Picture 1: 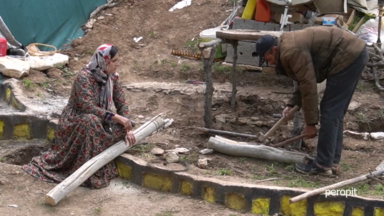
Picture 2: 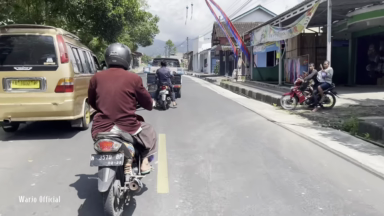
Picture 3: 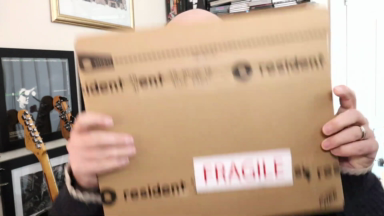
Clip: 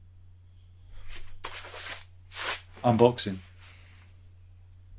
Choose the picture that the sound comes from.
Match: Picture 3